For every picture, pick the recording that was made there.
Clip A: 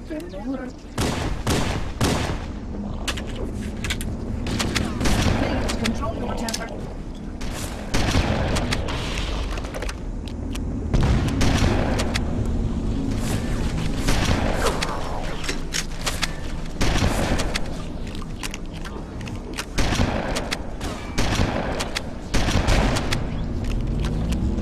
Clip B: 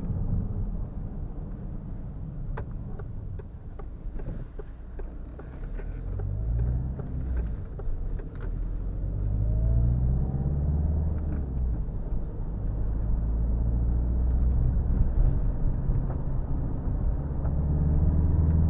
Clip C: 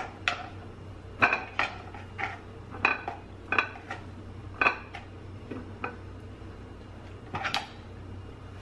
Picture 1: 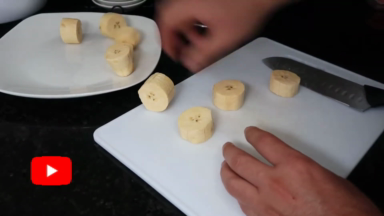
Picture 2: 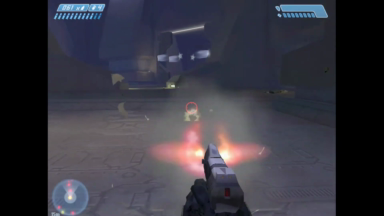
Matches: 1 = C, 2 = A